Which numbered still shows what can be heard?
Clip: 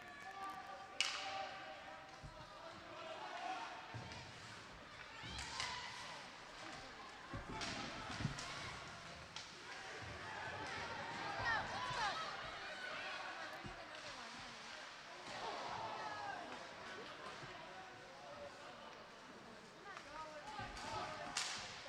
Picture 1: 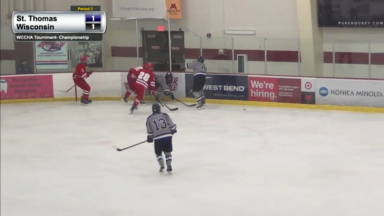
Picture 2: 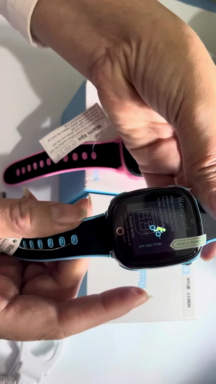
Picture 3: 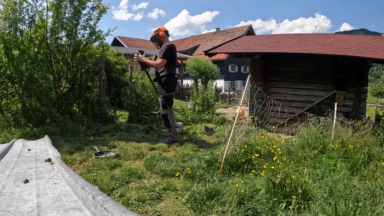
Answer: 1